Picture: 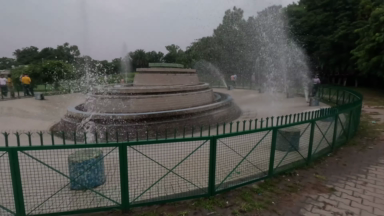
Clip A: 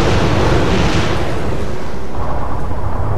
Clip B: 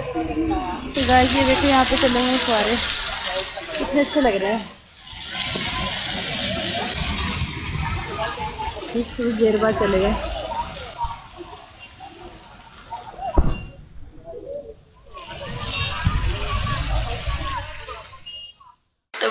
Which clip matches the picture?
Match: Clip B